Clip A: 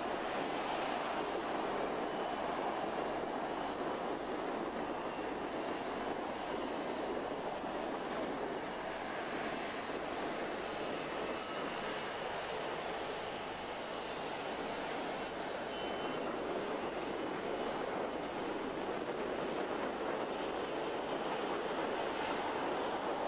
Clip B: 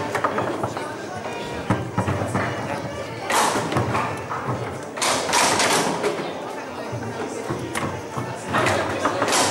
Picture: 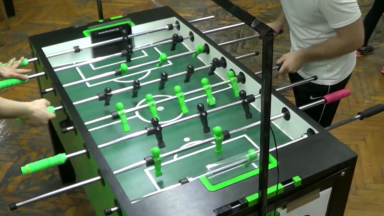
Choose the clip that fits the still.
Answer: B